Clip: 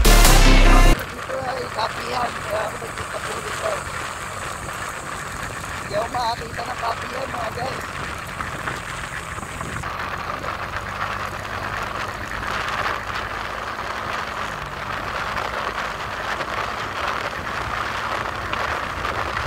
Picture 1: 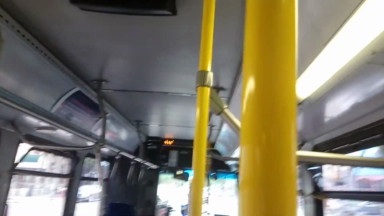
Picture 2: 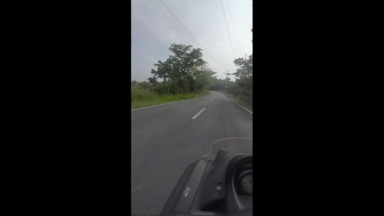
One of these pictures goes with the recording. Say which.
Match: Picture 2